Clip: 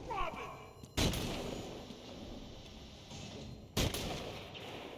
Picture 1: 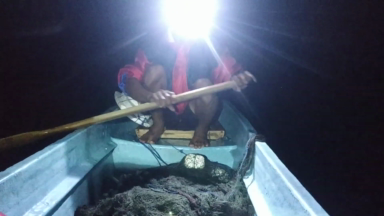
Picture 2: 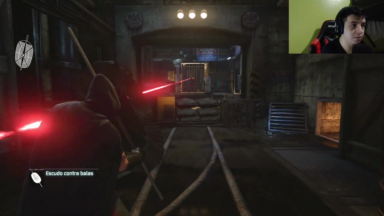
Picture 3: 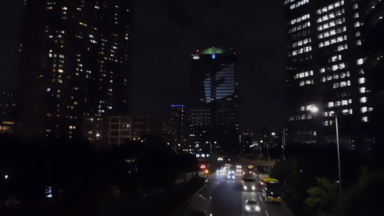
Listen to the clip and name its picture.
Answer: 2